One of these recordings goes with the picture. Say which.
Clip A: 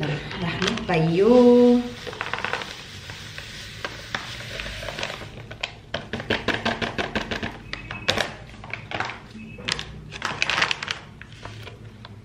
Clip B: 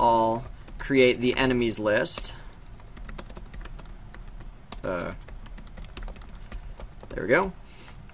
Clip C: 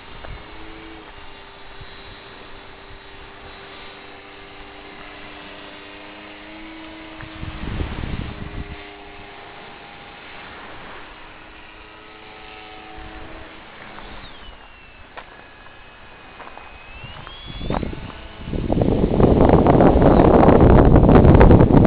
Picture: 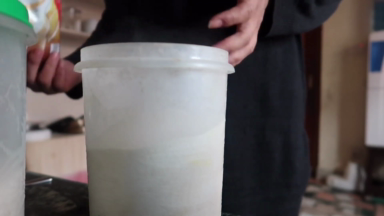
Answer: A